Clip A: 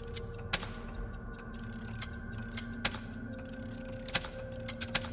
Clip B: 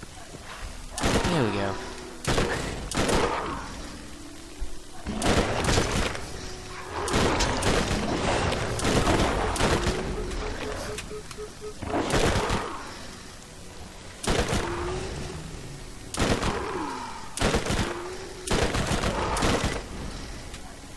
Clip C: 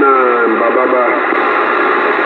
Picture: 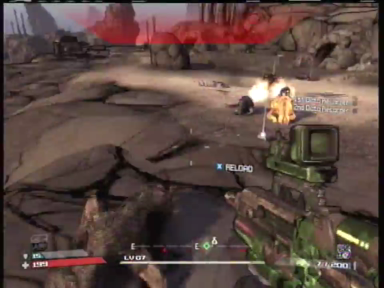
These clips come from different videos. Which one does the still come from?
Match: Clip B